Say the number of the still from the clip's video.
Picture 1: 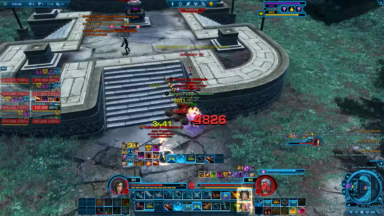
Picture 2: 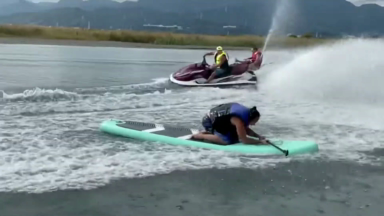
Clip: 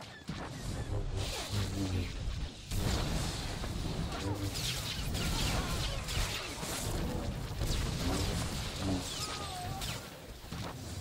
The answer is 1